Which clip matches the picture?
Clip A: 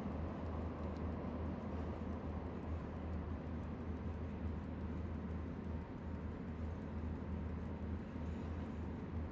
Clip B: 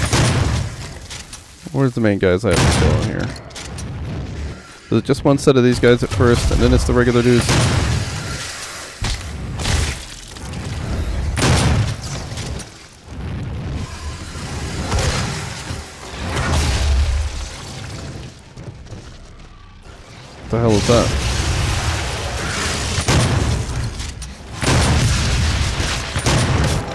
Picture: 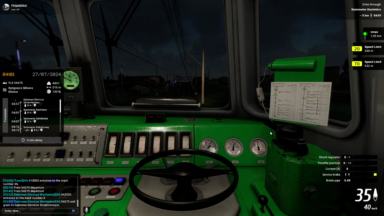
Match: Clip A